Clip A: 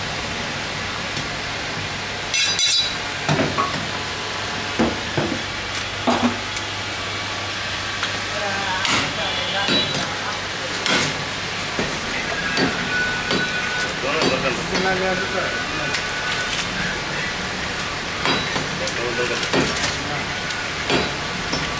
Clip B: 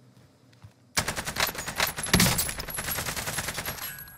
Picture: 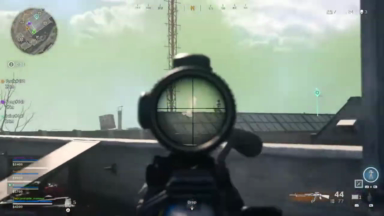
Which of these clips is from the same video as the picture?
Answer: B